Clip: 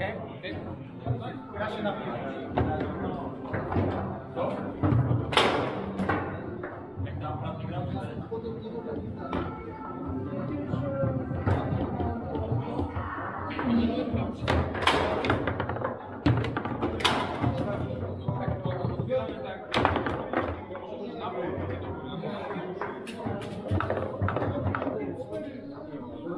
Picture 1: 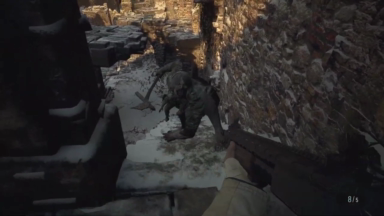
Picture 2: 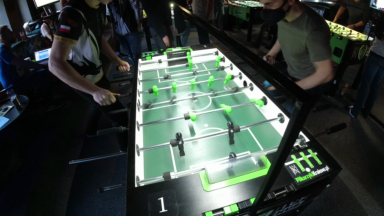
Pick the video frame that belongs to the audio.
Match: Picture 2